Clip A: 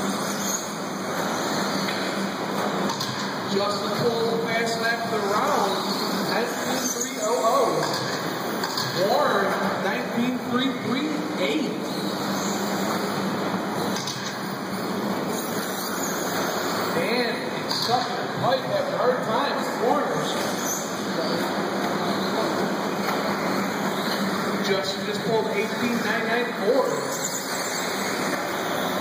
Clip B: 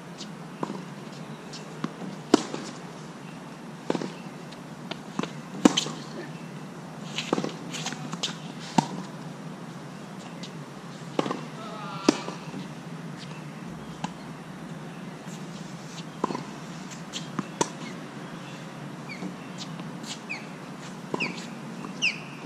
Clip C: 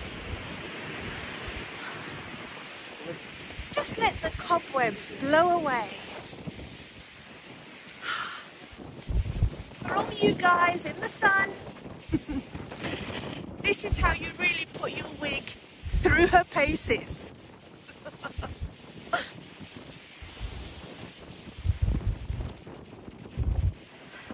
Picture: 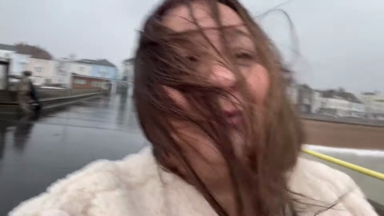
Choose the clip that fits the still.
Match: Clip C